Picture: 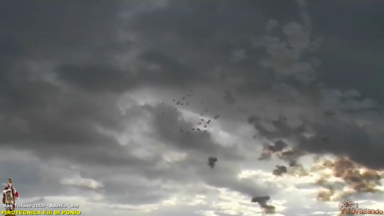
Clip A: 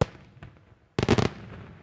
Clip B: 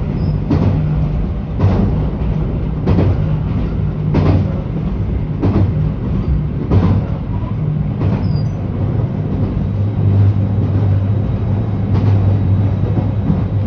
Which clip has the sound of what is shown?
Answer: A